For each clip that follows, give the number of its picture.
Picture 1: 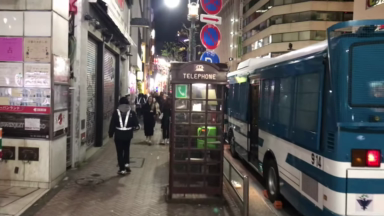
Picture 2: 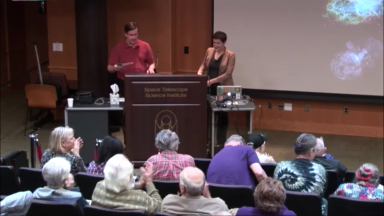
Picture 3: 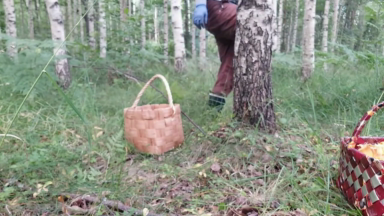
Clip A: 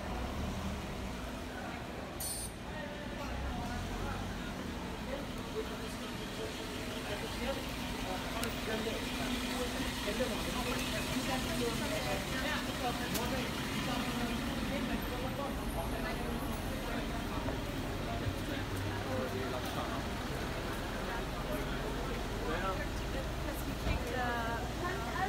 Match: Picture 1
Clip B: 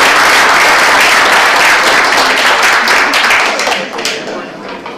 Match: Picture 2